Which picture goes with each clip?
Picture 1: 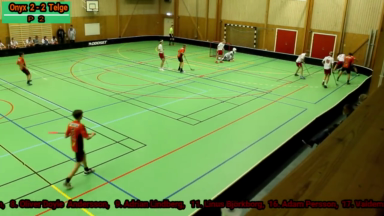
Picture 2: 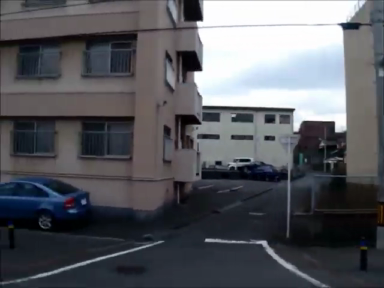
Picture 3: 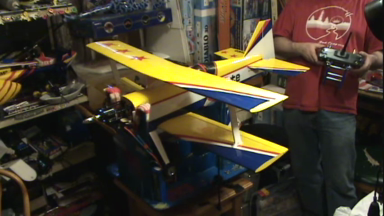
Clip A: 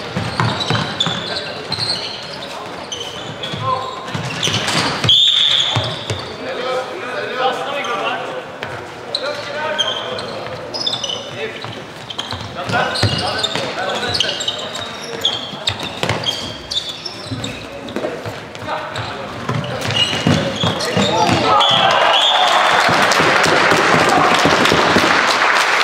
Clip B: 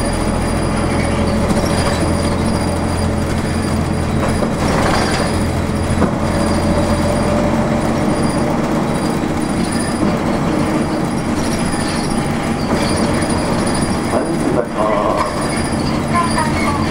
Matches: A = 1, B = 2